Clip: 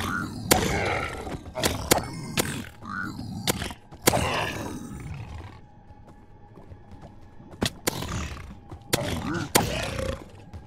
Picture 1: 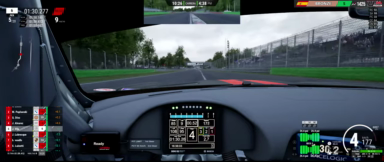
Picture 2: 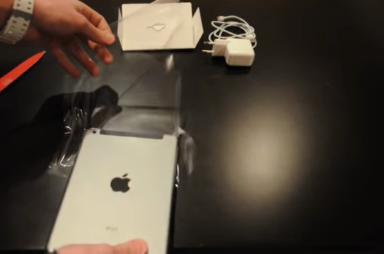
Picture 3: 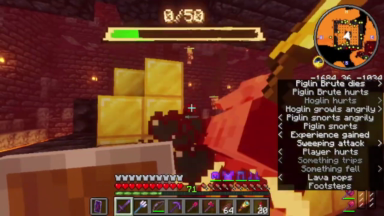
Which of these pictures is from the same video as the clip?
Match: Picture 3